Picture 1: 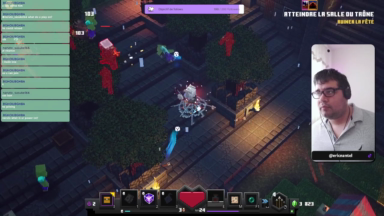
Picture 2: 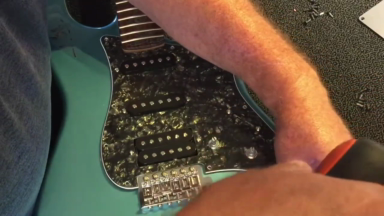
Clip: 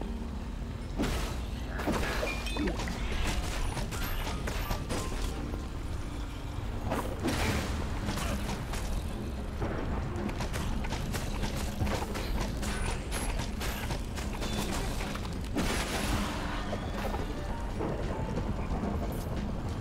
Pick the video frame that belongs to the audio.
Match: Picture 1